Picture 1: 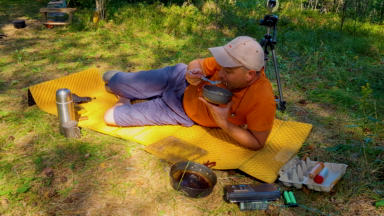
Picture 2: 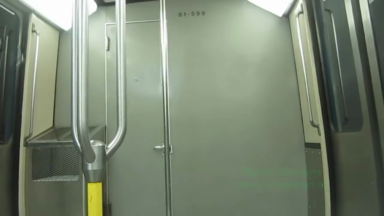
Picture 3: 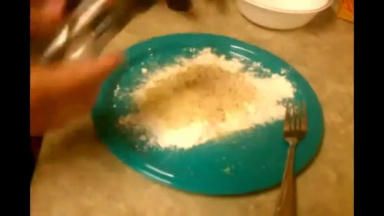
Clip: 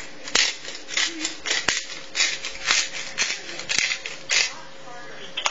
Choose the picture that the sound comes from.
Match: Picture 3